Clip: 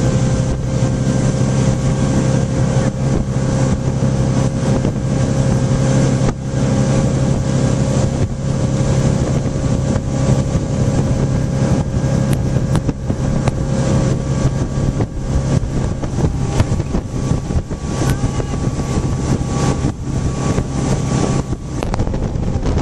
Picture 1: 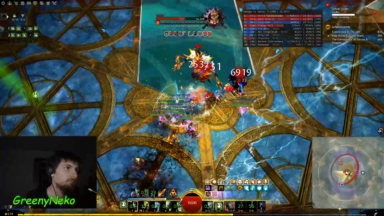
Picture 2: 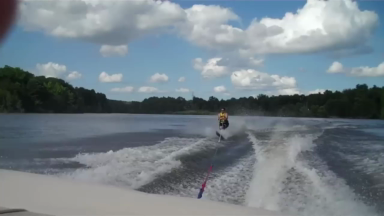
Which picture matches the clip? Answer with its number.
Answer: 2